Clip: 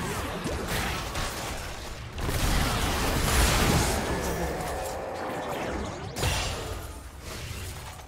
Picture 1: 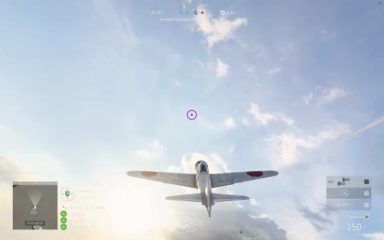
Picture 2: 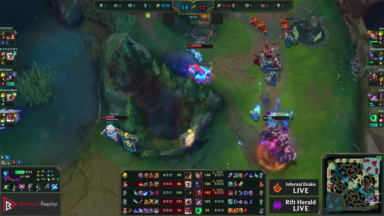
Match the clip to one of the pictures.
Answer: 2